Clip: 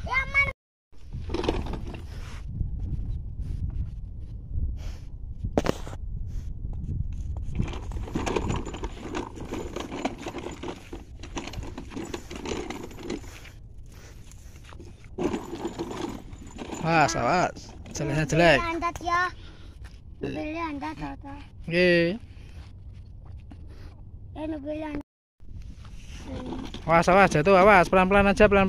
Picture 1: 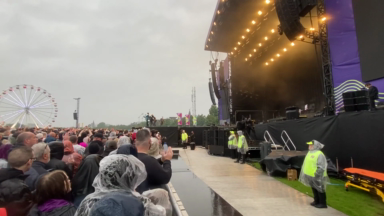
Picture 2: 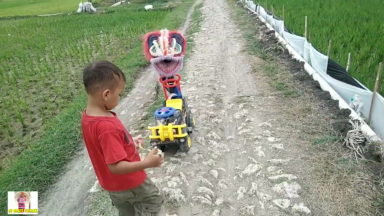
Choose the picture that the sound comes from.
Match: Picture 2